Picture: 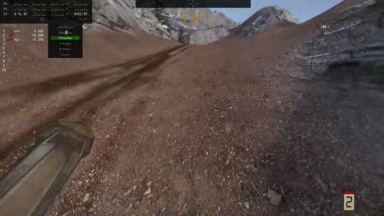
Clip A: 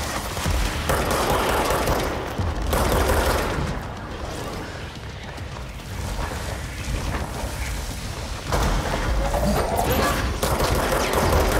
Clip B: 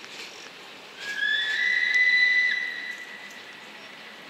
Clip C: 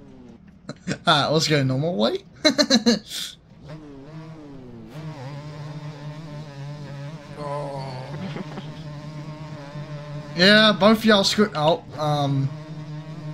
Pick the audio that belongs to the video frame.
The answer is C